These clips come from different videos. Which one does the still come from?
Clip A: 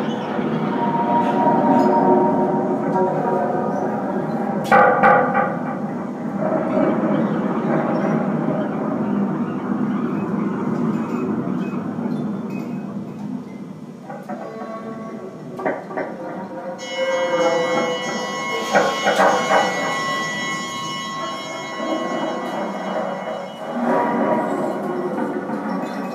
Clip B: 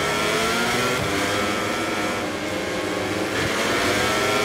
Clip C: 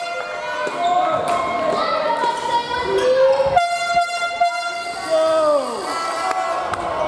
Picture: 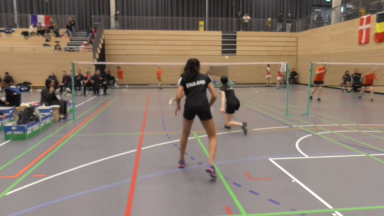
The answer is C